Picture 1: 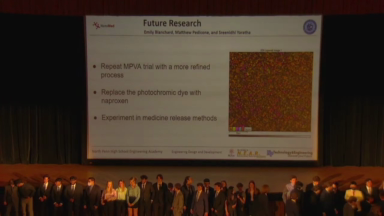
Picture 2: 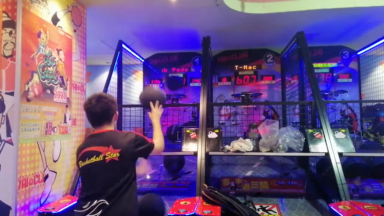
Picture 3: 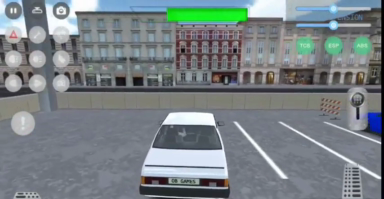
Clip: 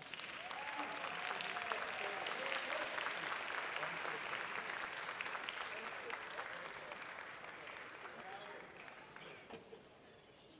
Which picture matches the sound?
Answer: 1